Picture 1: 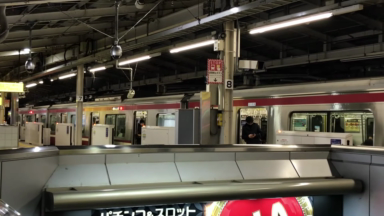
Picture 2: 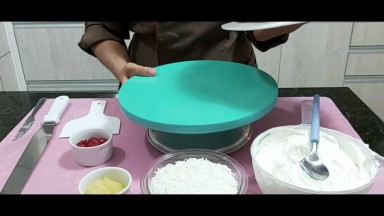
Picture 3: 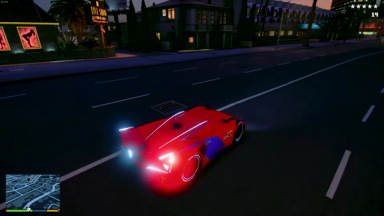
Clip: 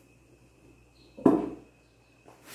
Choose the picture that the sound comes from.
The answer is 2